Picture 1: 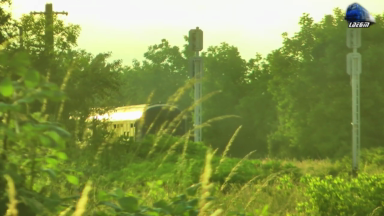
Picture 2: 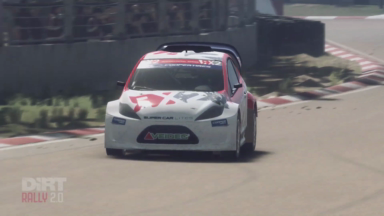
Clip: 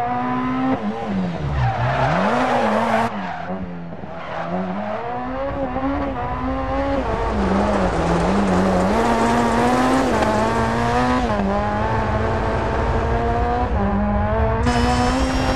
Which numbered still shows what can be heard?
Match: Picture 2